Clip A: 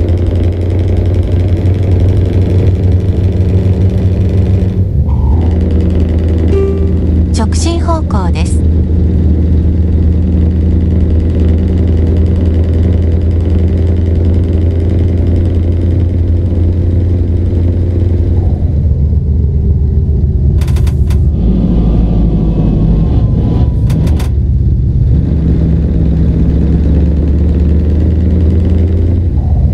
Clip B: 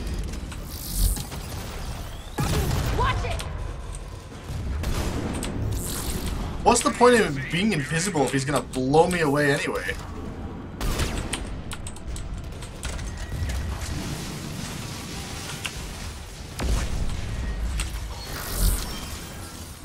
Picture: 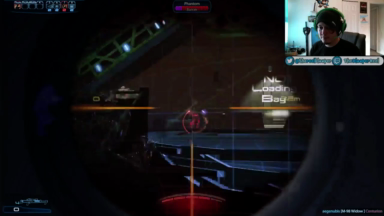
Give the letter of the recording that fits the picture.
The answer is B